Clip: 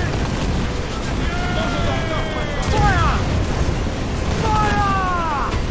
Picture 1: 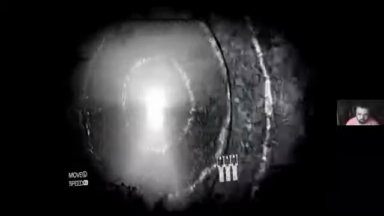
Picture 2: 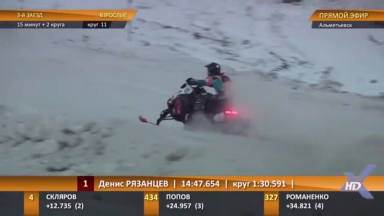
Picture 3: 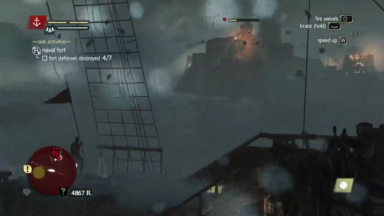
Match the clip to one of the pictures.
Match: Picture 3